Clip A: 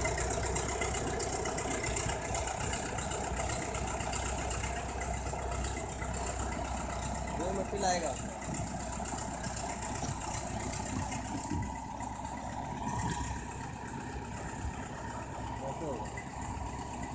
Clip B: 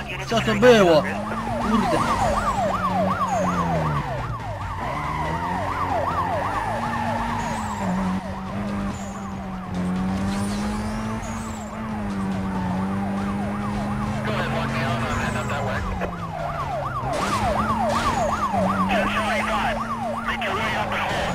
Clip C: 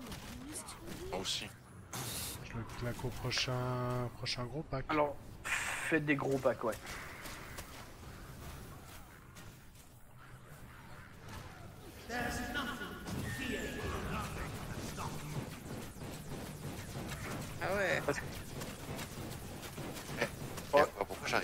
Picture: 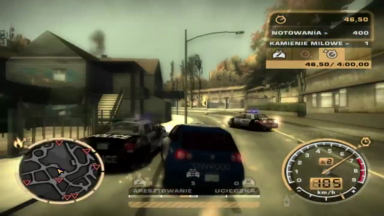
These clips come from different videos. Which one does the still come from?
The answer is B